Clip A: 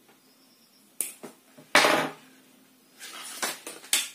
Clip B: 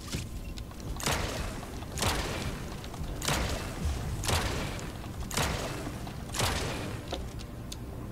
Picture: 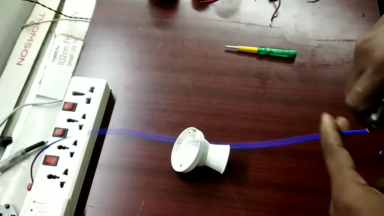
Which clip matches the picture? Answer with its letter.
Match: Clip A